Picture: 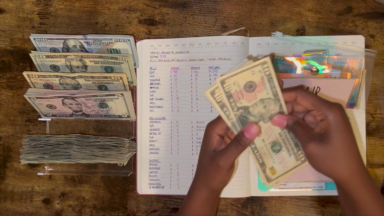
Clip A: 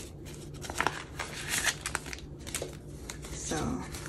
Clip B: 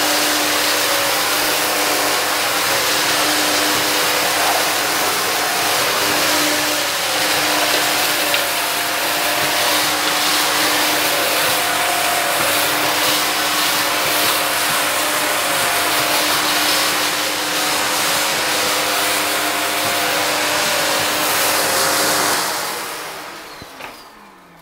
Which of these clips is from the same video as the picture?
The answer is A